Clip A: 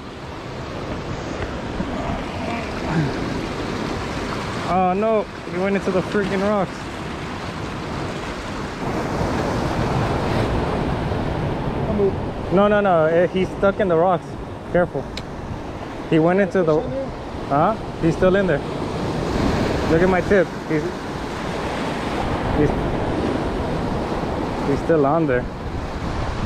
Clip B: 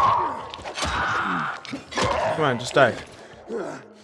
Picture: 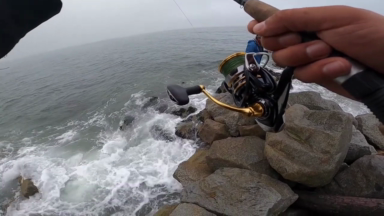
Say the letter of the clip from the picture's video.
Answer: A